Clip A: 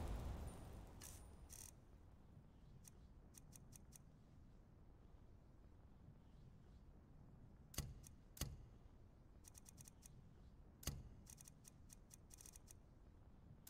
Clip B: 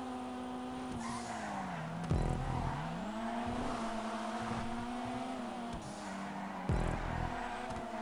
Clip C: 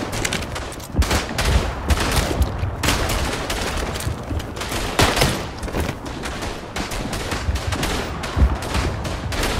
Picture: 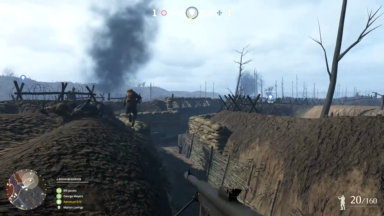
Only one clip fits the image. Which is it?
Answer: C